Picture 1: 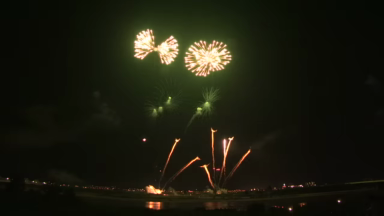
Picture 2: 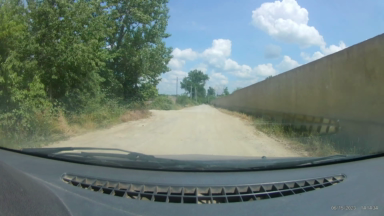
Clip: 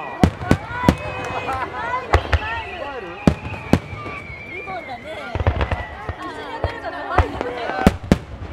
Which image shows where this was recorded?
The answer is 1